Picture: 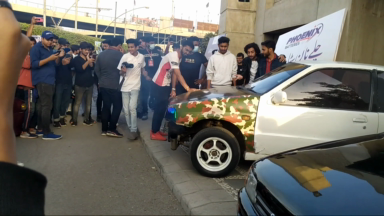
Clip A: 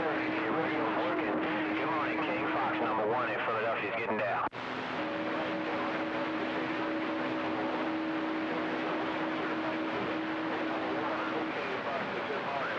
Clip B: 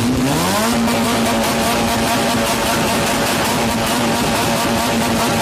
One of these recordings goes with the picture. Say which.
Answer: B